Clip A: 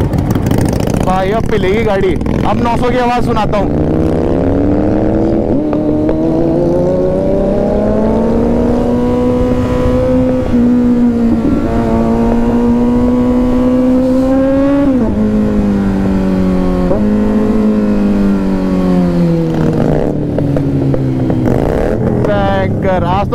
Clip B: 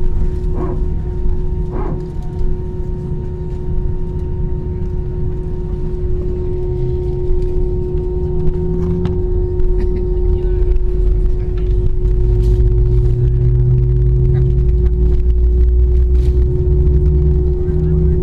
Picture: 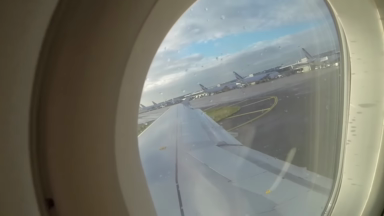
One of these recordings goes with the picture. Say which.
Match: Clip B